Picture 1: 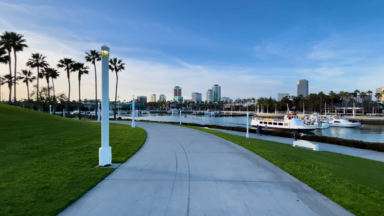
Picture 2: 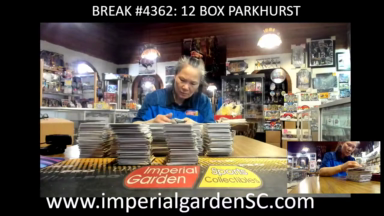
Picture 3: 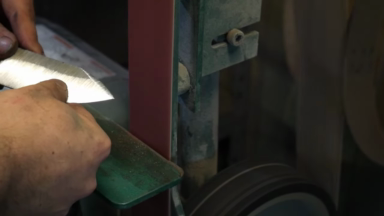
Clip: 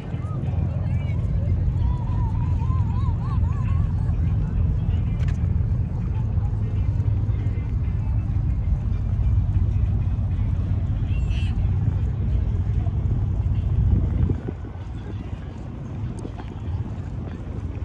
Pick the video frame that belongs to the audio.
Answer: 1